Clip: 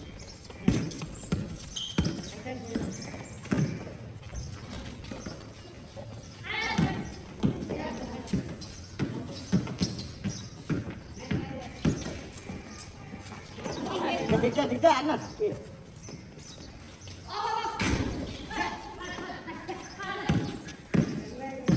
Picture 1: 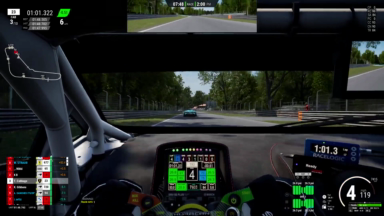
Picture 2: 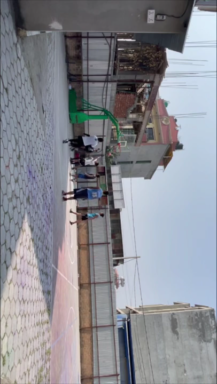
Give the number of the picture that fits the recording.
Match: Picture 2